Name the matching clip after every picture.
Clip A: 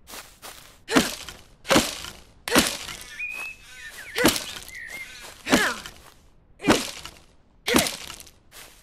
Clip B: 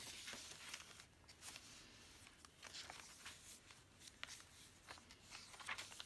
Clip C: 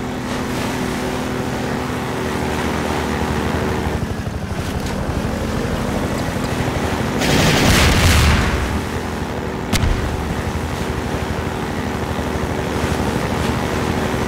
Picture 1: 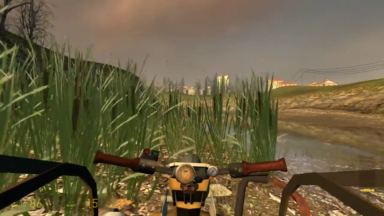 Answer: C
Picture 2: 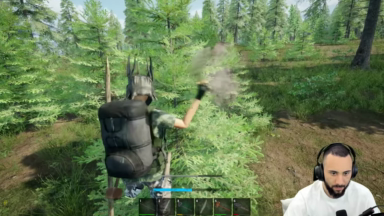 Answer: A